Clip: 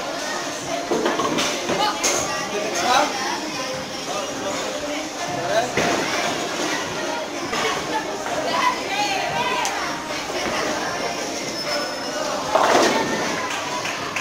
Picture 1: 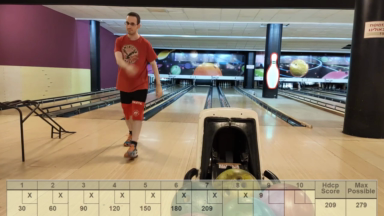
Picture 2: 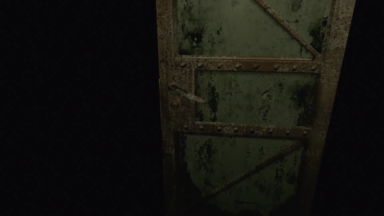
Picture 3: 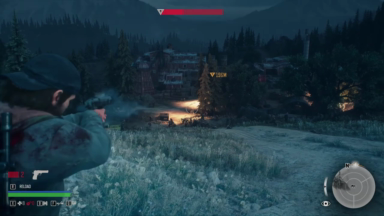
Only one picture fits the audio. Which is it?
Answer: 1